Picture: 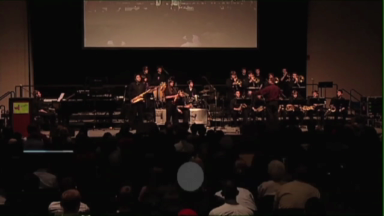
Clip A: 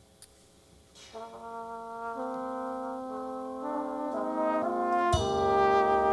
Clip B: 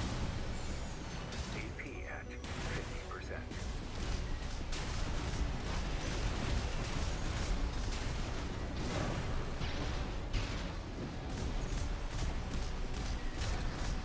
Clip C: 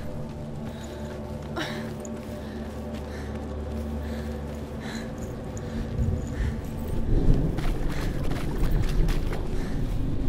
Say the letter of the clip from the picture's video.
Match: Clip A